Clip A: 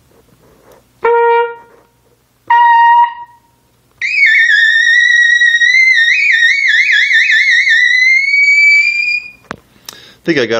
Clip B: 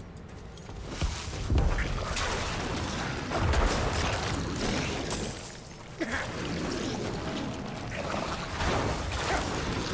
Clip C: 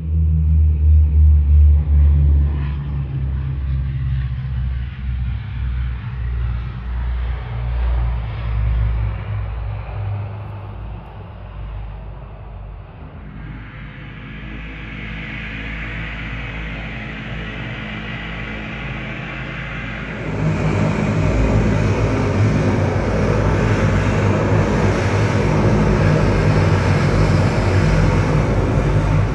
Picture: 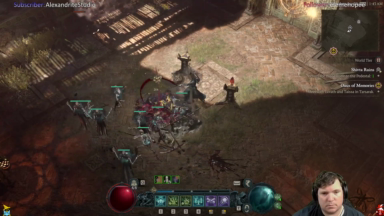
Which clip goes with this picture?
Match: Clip B